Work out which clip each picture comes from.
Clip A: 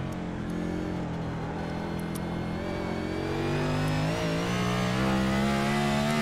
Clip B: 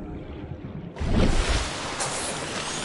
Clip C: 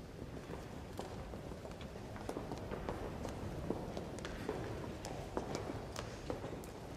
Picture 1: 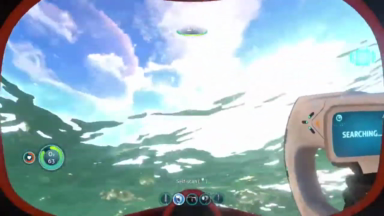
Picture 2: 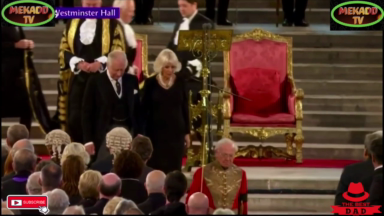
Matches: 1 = B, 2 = C